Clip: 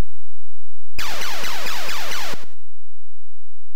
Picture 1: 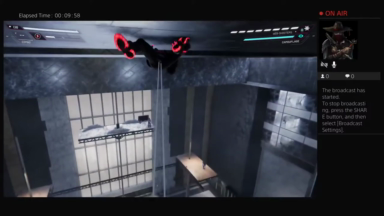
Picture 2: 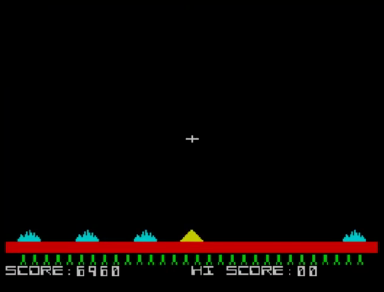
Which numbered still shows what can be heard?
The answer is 2